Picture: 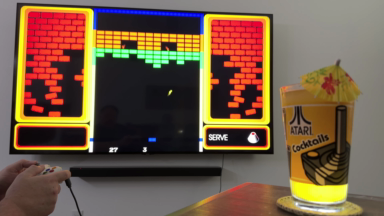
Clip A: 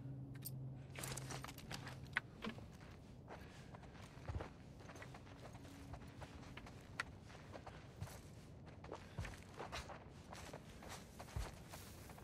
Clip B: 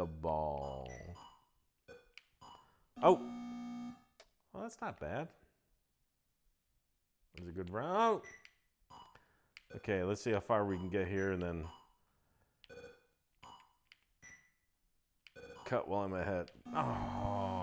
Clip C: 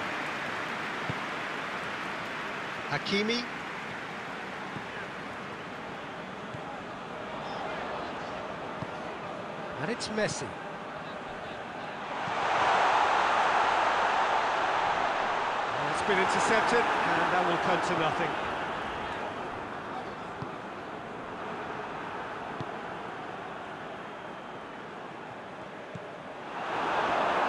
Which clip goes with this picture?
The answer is B